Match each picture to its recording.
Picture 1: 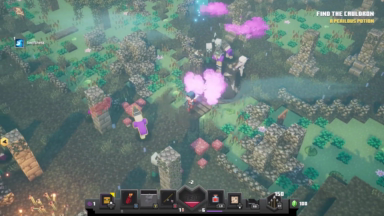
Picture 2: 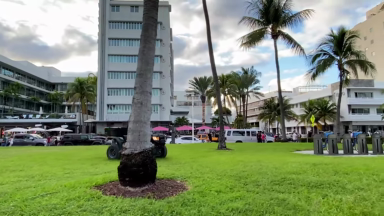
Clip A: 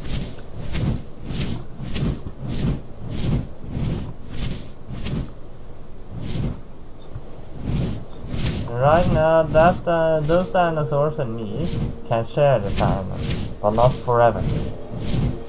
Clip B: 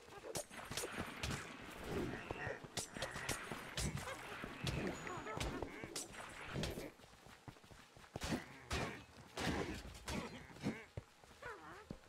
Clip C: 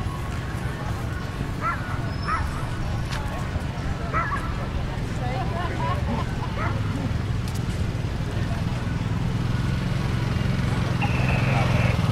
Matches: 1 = B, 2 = C